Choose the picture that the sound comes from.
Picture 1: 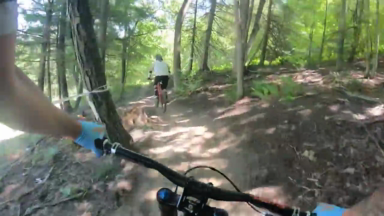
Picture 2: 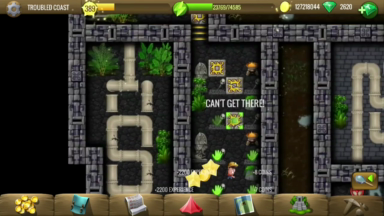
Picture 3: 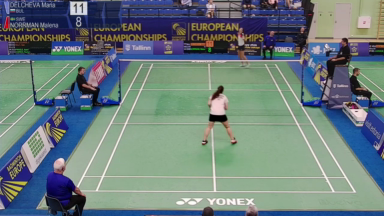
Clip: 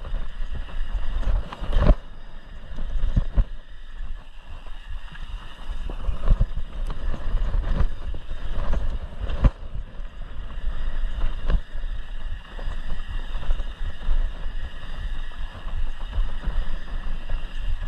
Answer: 1